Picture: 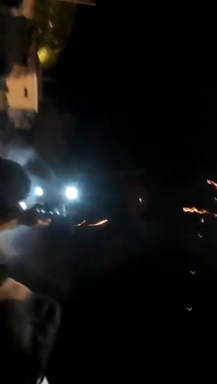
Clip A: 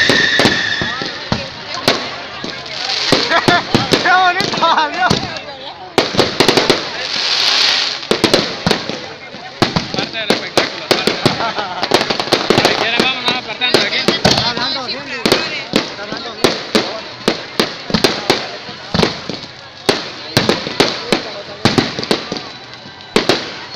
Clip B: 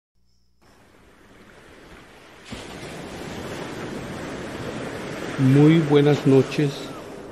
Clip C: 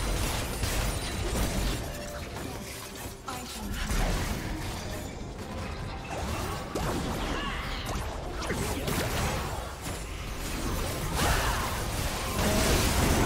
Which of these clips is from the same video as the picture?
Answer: A